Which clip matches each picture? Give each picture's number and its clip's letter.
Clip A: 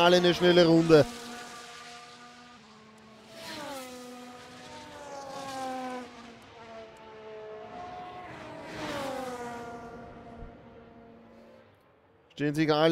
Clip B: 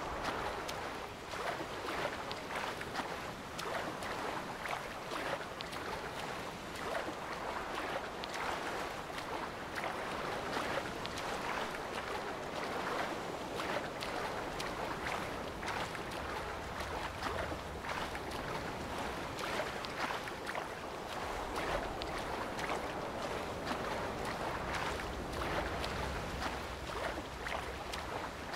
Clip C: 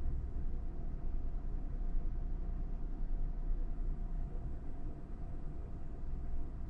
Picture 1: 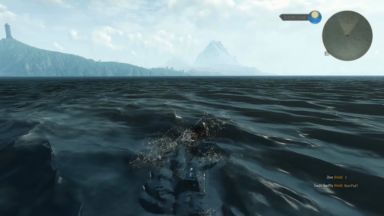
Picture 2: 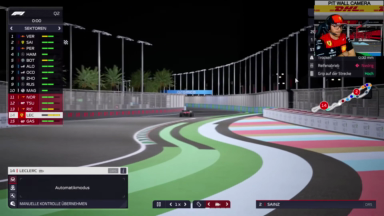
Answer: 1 B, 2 A